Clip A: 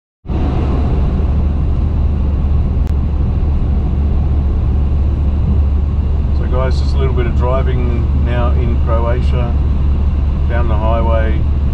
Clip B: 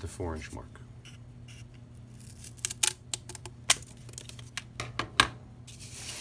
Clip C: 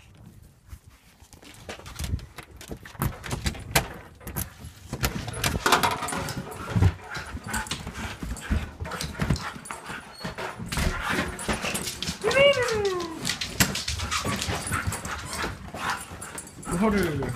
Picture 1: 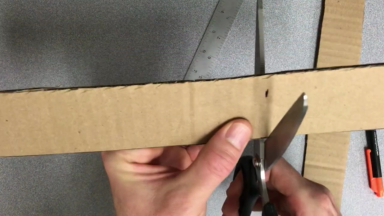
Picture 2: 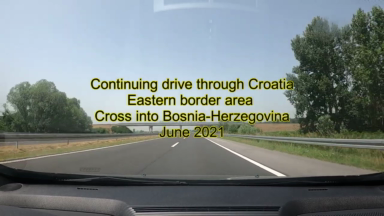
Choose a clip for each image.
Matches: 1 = B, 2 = A